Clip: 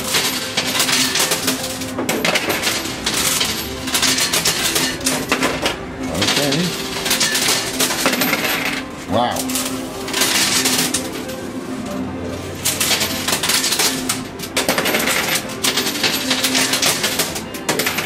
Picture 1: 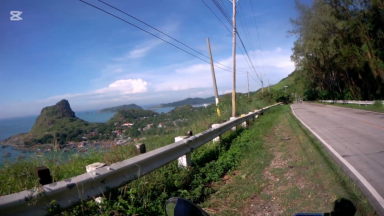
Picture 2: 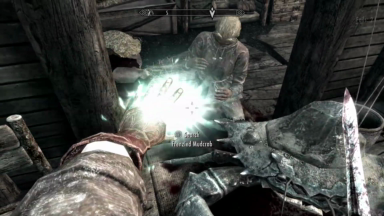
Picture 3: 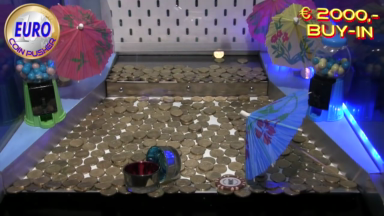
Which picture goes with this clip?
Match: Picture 3